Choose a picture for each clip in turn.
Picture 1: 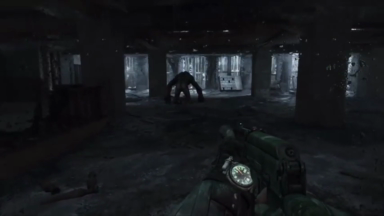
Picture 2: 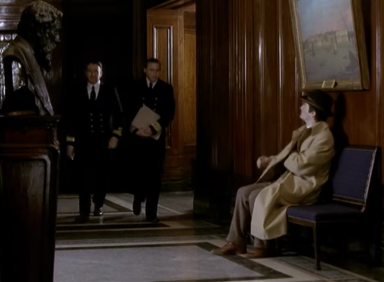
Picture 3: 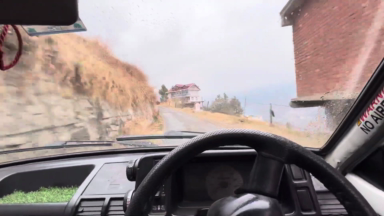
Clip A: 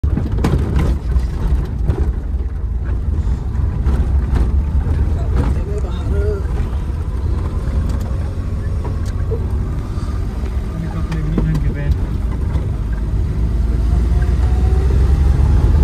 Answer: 3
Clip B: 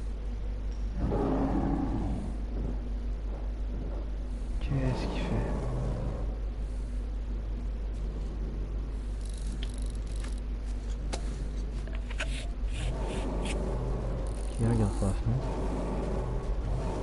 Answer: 1